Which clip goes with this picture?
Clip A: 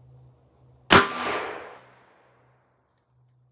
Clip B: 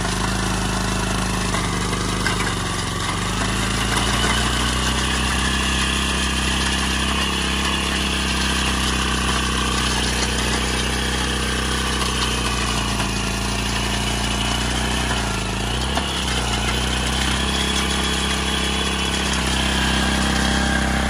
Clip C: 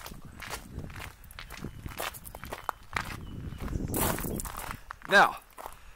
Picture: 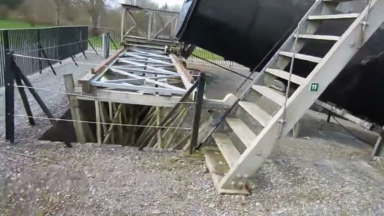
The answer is C